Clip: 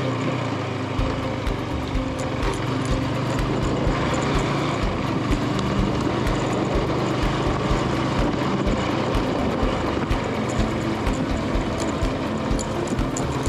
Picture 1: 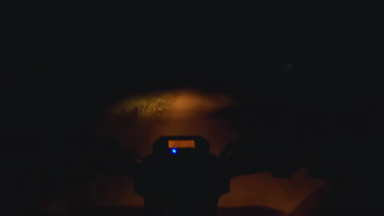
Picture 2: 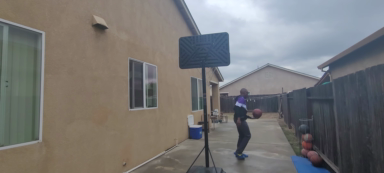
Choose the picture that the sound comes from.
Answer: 1